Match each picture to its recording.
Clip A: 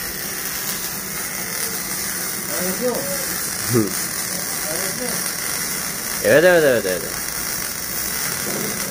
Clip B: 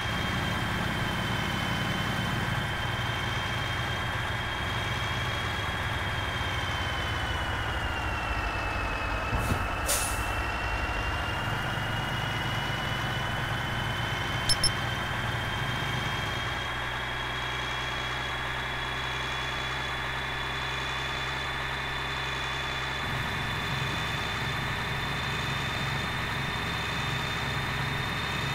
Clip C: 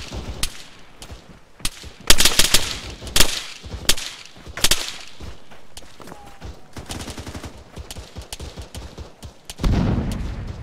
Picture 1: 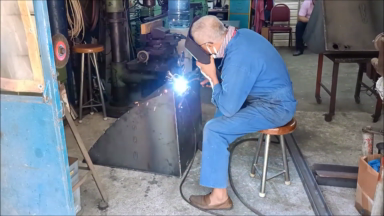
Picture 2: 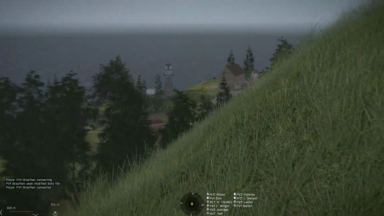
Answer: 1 A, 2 C